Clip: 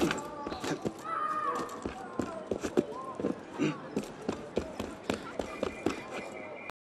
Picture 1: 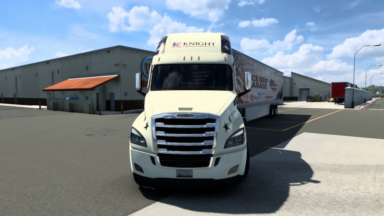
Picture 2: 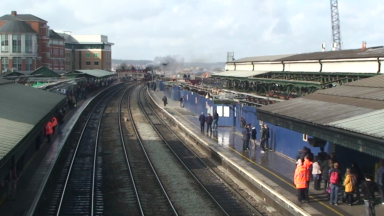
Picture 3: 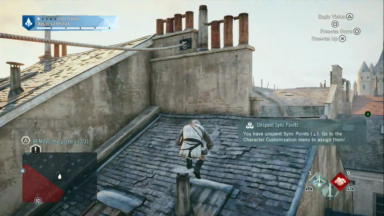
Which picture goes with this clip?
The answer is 3